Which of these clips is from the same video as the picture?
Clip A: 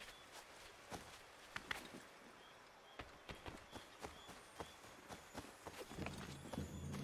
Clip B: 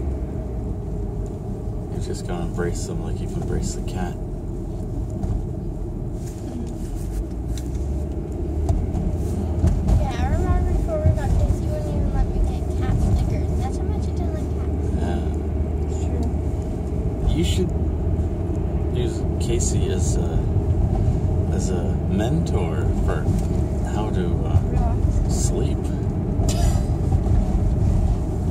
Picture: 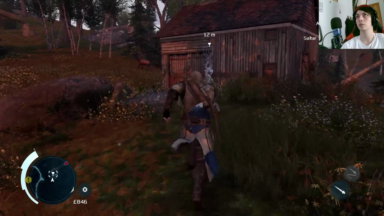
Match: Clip A